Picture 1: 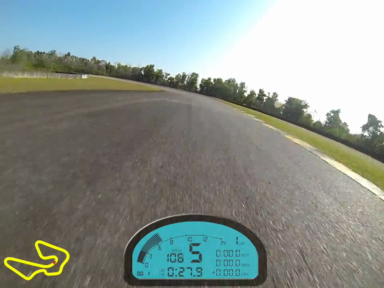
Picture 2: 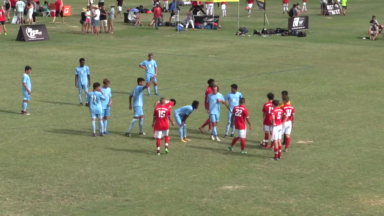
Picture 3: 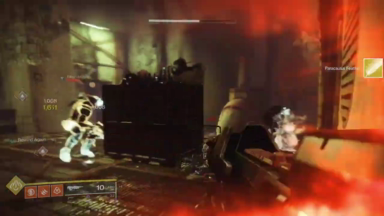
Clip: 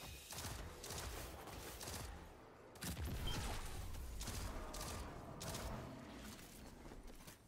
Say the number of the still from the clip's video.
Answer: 3